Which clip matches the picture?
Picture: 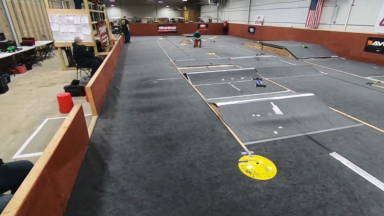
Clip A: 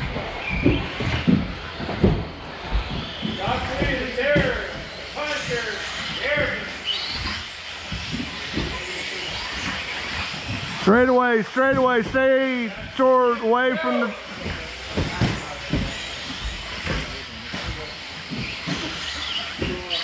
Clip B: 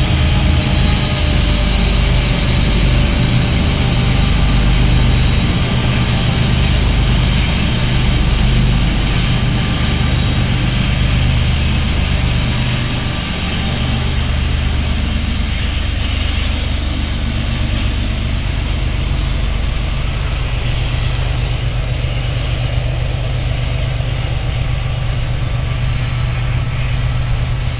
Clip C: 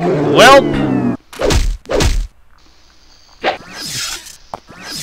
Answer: A